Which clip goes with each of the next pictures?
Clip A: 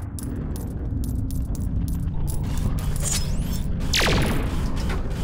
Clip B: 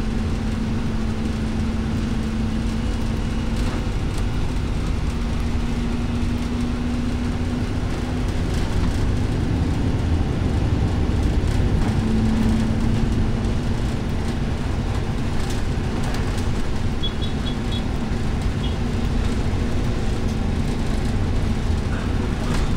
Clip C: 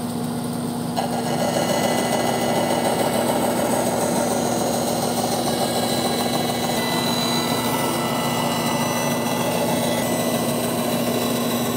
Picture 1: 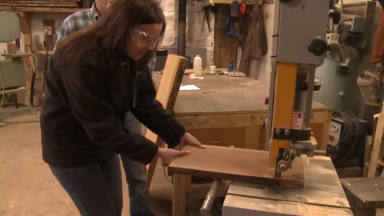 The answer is C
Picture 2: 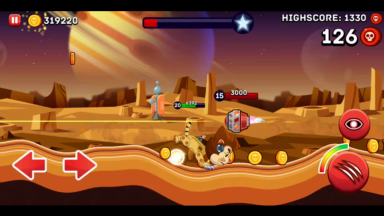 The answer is A